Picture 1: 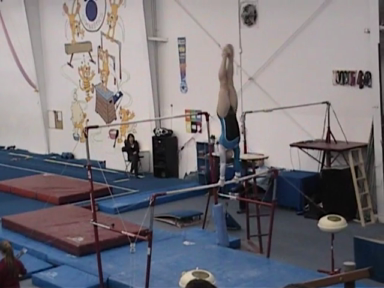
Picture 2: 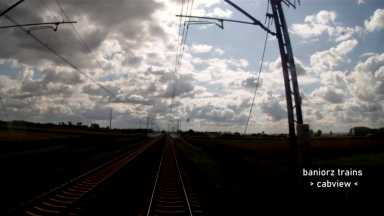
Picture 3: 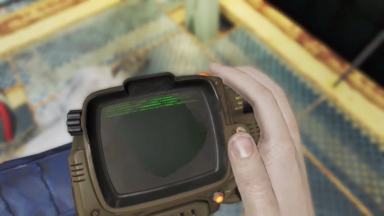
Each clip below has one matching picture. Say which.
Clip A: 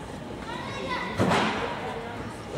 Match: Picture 1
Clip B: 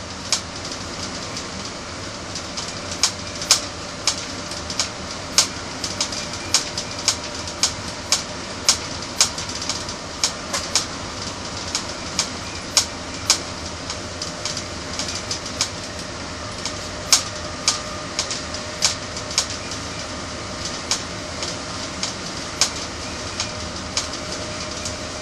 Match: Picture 2